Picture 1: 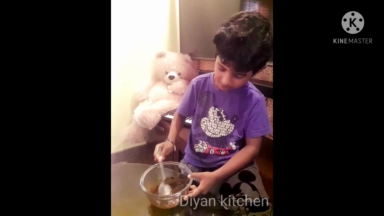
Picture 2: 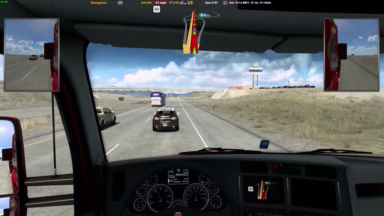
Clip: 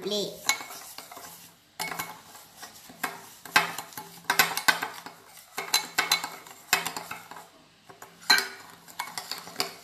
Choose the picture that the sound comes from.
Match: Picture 1